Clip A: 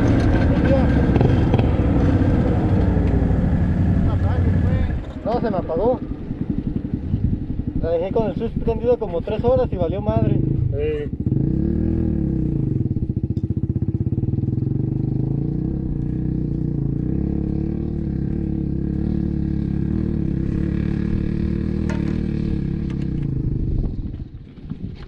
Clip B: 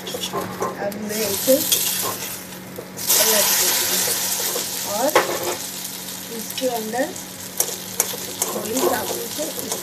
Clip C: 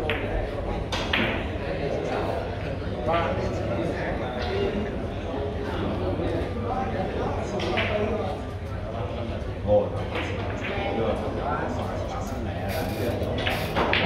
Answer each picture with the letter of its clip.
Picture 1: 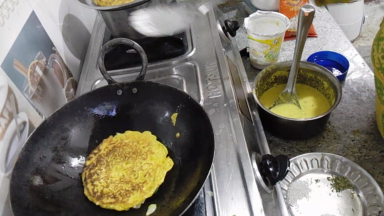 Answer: B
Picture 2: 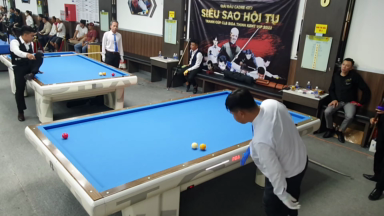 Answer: C